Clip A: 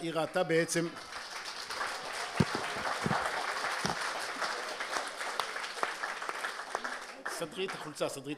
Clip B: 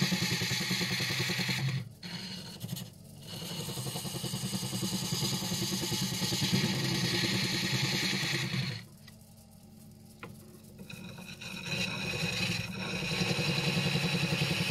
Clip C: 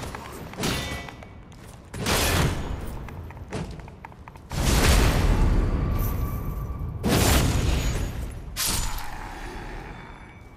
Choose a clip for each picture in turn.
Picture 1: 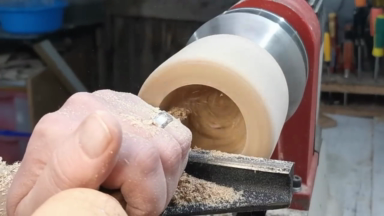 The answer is B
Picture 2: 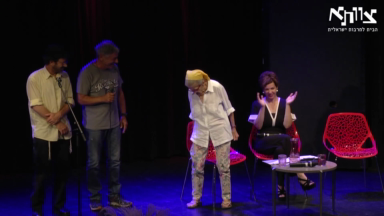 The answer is A